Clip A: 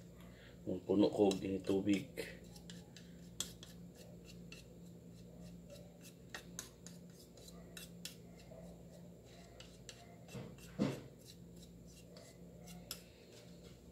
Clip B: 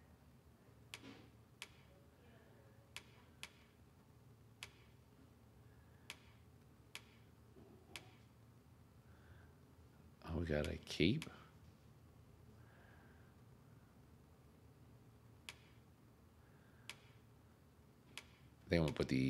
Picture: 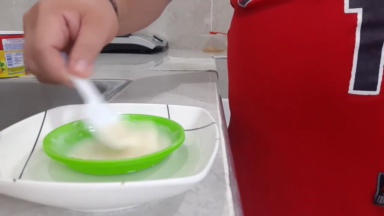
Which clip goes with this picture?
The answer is A